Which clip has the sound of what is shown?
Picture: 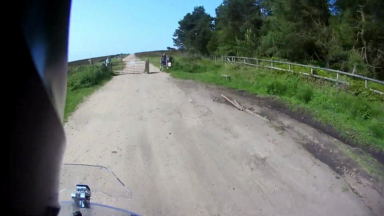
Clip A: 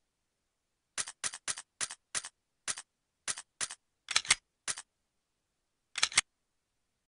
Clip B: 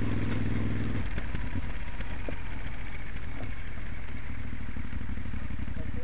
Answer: B